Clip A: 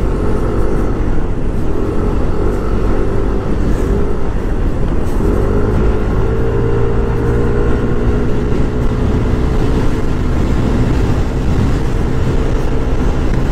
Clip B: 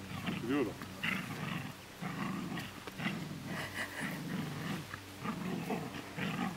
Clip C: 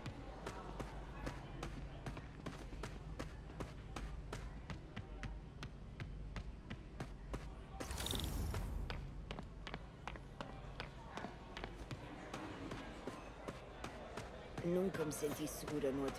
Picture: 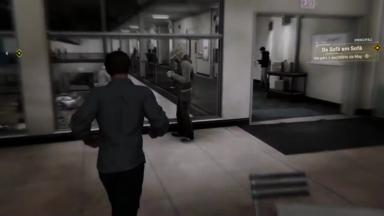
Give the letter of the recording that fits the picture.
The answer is C